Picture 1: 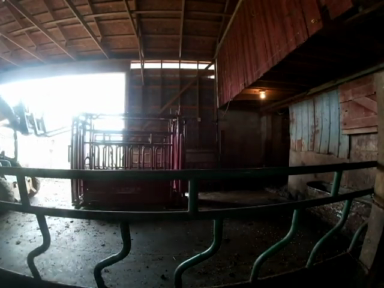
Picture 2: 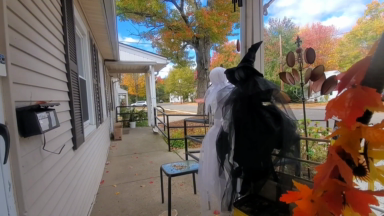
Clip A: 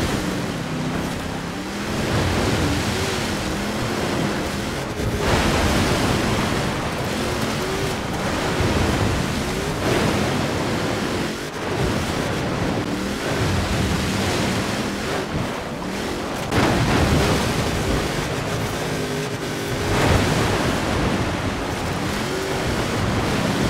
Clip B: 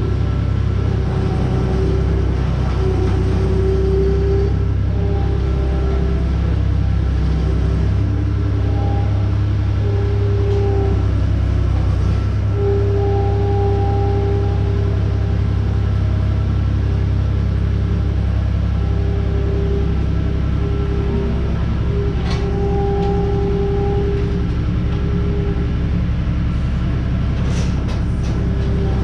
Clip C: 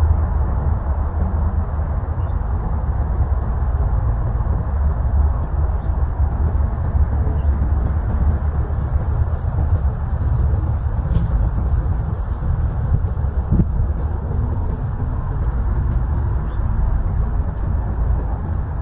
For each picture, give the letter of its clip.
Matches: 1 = B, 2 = C